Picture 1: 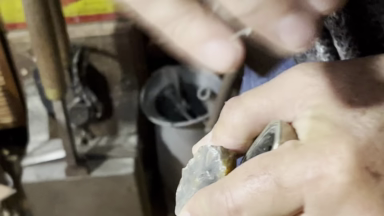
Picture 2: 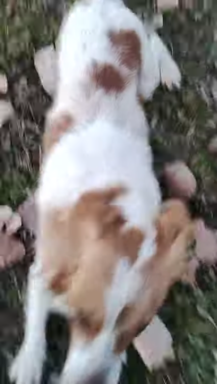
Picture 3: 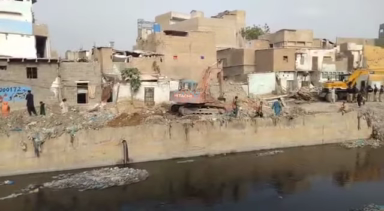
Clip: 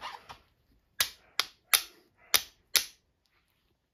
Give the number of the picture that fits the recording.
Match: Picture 1